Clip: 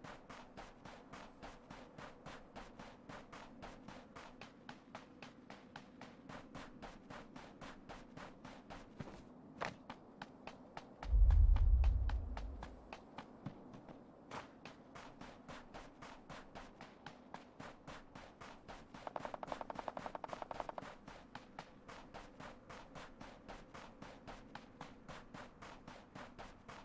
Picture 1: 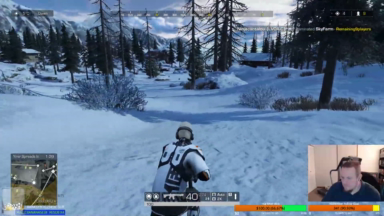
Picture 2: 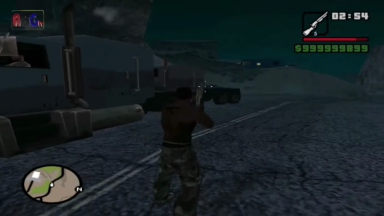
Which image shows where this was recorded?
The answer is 1